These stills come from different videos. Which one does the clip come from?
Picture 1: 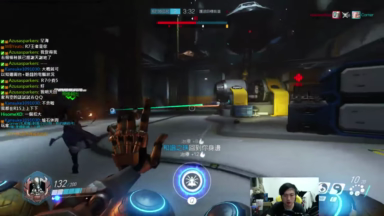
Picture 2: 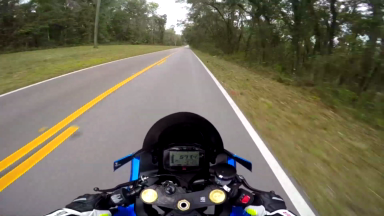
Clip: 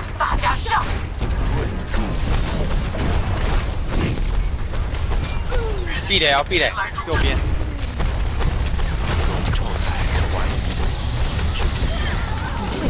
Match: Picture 1